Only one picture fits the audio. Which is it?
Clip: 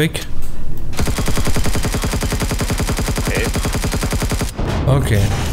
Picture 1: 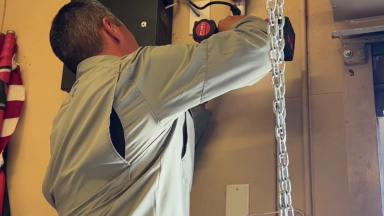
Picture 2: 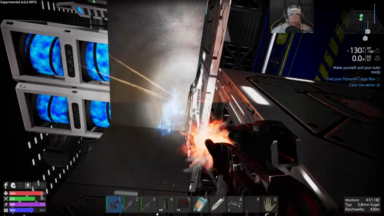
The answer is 2